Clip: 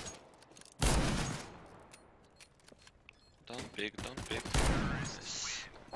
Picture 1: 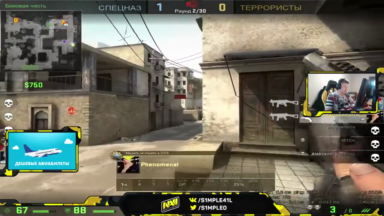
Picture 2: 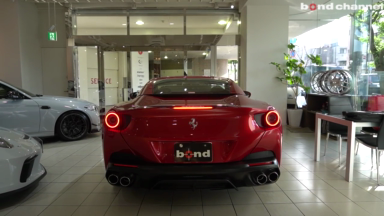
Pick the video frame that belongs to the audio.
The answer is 1